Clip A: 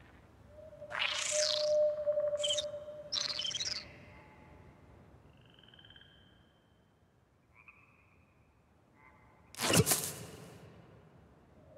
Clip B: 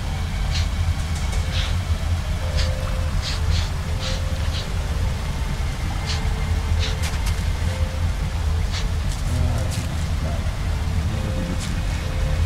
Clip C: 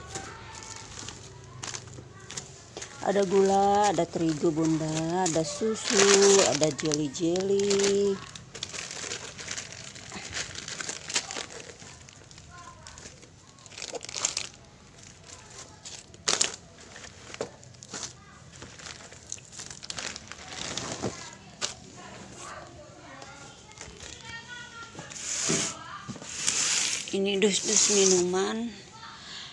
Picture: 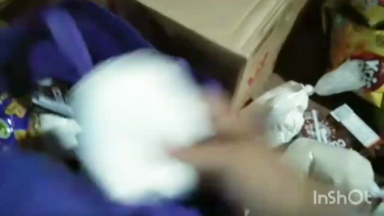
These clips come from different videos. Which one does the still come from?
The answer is C